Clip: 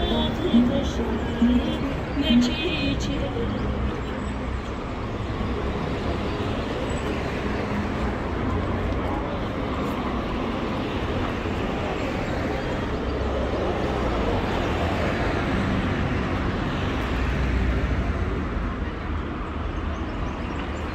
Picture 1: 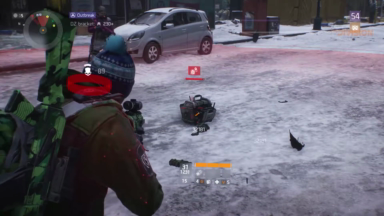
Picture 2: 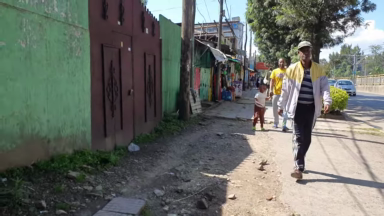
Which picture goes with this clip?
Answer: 2